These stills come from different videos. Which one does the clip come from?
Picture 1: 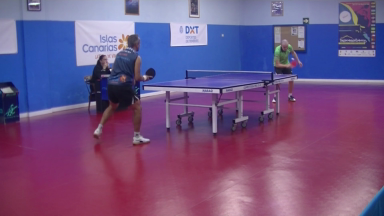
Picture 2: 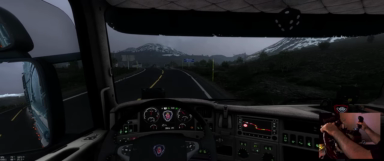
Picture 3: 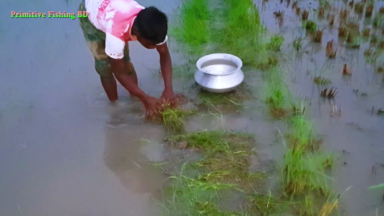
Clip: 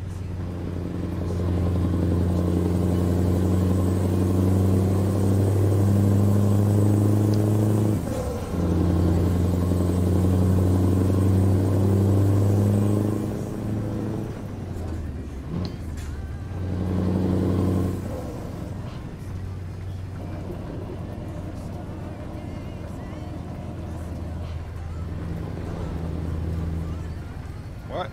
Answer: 2